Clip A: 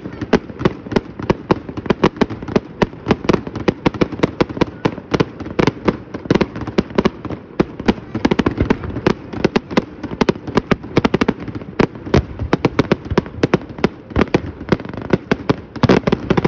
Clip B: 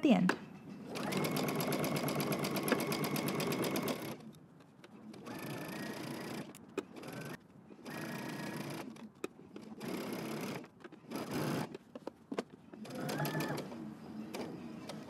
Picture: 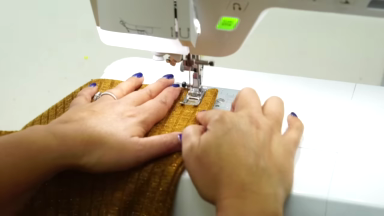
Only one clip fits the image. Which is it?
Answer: B